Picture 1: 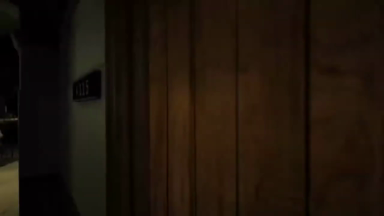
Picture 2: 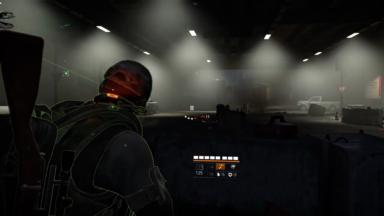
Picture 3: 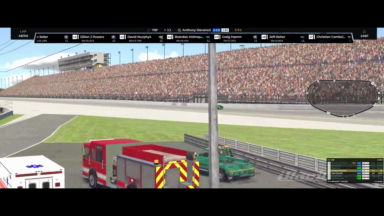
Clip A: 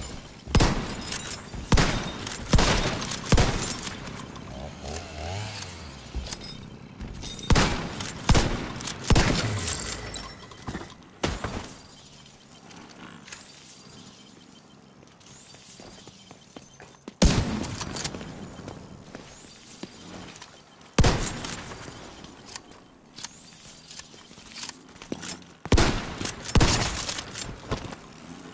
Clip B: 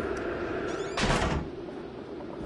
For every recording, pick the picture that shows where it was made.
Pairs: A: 2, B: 1